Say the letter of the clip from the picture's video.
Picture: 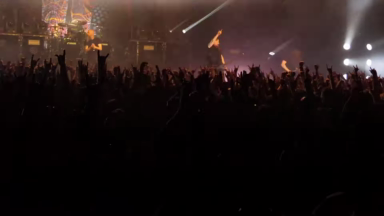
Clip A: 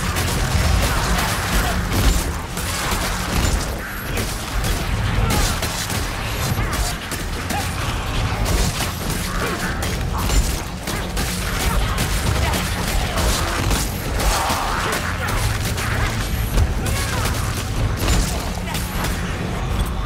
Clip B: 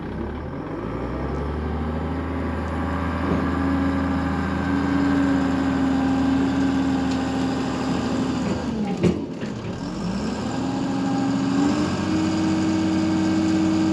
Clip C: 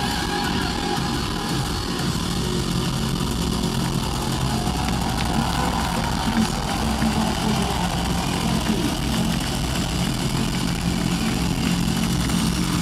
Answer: C